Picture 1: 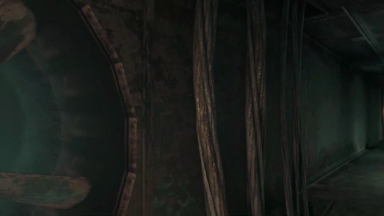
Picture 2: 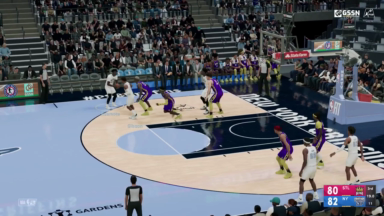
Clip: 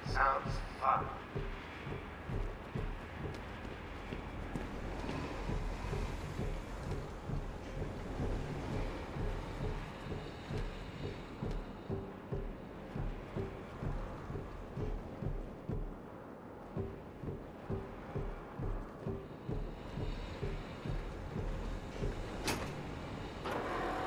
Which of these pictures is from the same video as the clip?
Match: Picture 1